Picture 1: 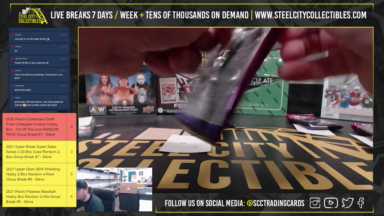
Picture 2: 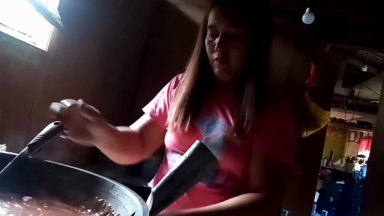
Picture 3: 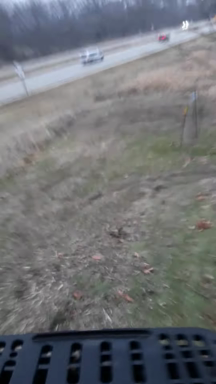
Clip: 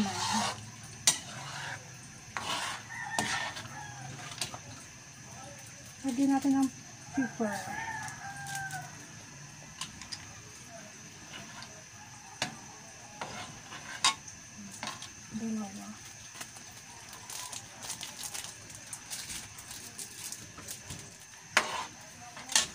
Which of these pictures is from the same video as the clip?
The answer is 2